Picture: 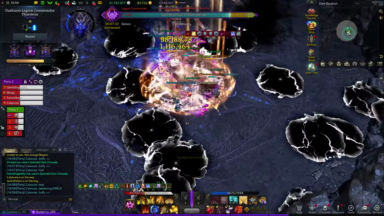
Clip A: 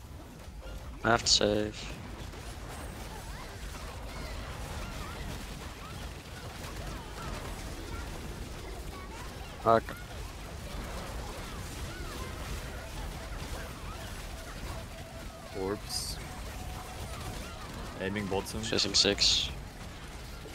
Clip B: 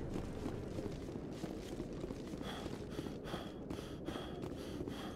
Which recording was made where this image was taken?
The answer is A